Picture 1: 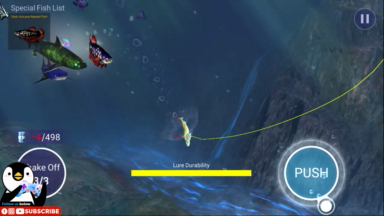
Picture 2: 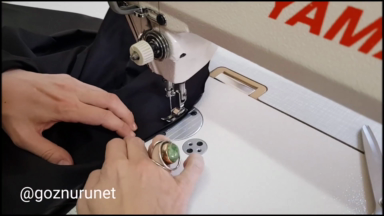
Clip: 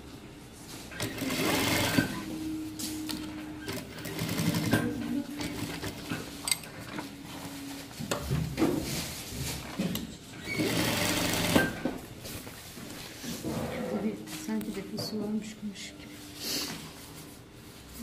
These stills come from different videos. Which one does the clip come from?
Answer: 2